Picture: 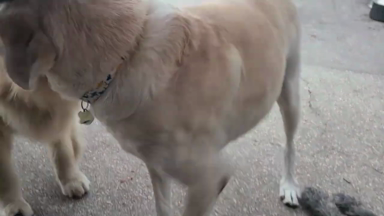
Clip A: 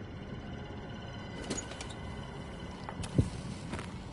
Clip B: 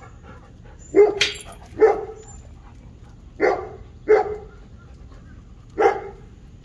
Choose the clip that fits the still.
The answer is B